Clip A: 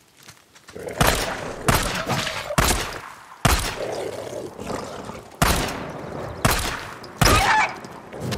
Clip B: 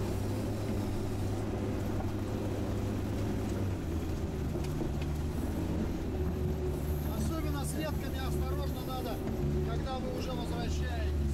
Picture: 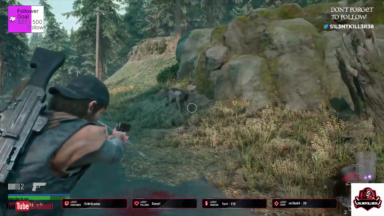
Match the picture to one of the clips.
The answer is A